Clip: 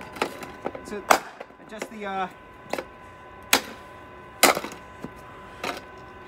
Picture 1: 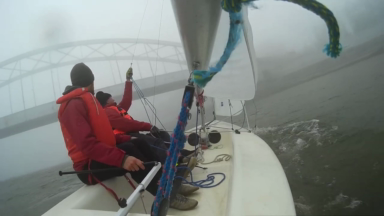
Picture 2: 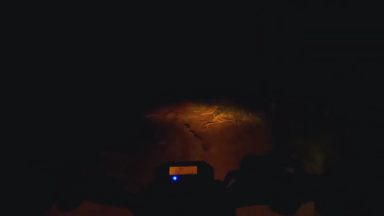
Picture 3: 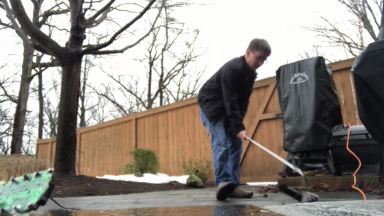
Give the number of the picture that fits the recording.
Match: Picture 3